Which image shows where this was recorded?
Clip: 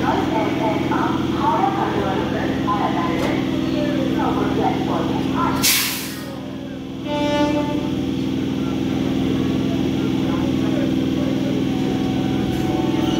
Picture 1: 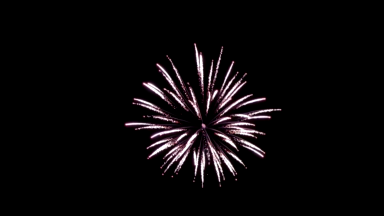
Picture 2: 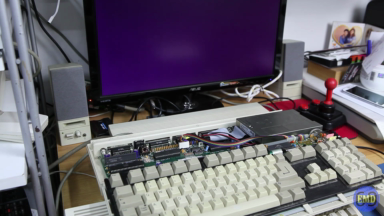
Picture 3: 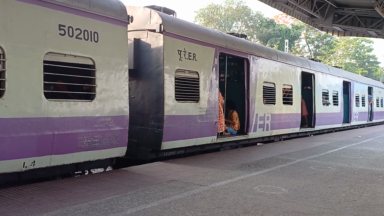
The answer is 3